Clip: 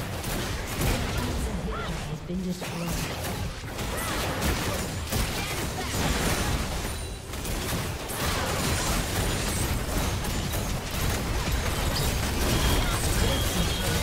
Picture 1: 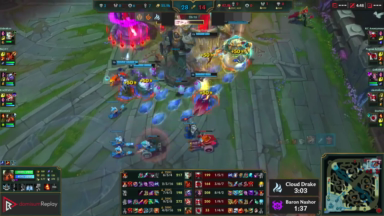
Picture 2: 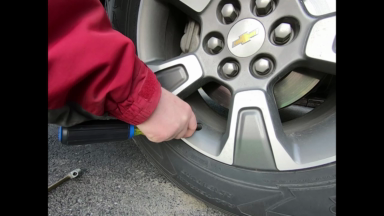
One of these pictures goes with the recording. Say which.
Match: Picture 1